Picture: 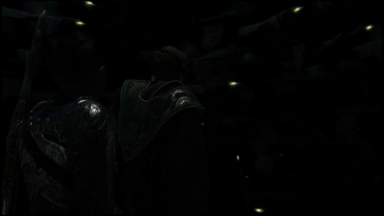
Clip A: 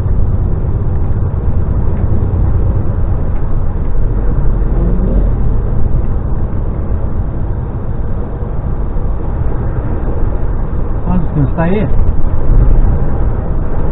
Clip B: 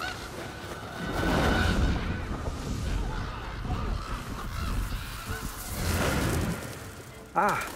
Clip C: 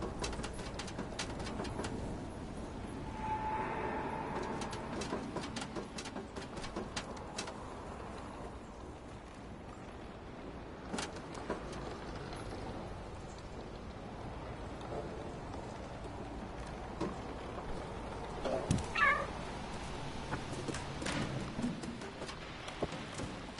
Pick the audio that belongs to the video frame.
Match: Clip B